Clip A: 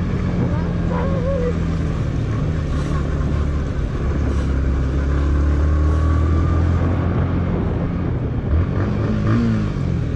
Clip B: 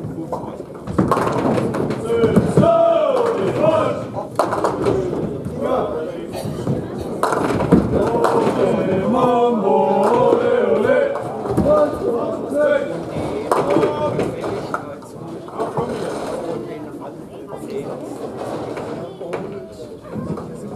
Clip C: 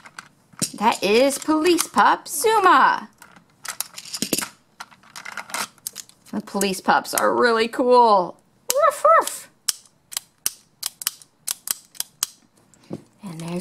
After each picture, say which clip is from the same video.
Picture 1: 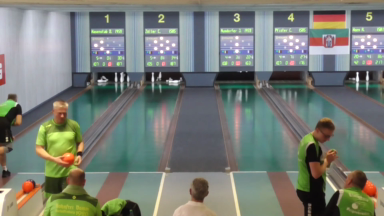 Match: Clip B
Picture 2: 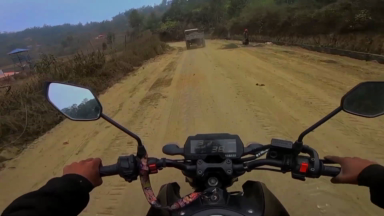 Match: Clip A